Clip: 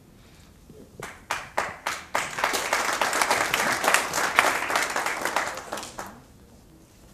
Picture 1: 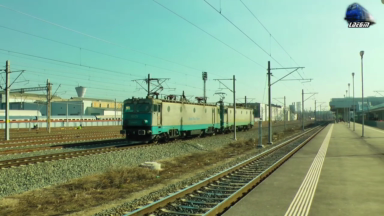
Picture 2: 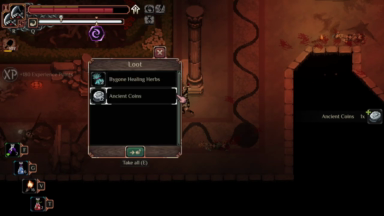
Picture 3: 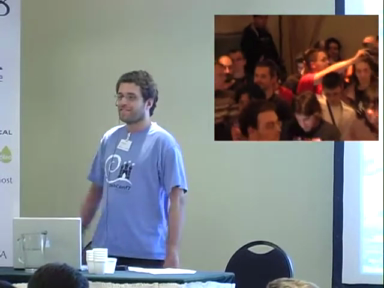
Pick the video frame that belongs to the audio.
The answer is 3